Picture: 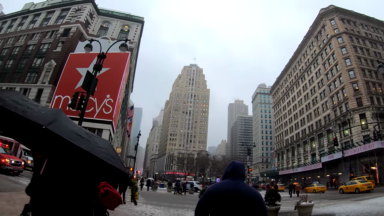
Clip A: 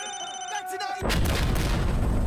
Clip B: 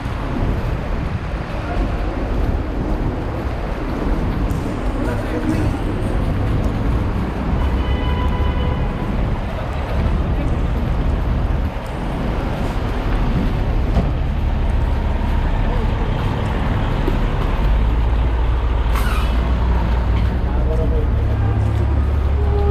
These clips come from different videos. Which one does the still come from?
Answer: B